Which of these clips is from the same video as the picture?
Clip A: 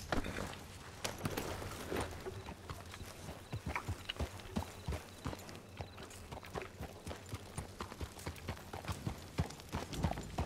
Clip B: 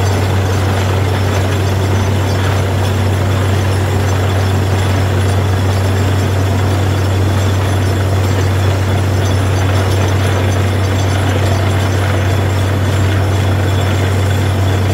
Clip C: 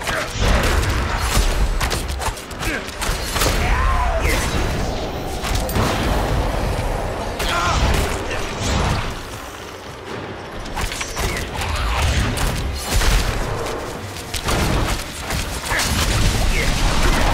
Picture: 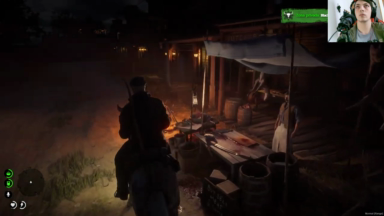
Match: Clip A